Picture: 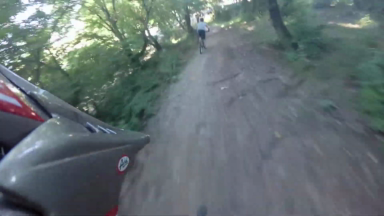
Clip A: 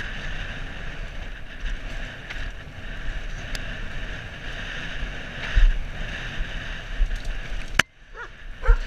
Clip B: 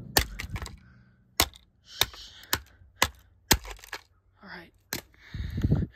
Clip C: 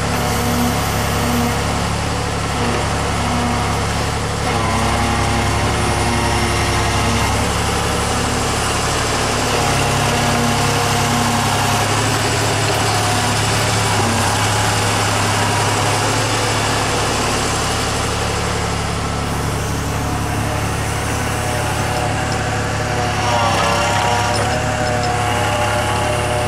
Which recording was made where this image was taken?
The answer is A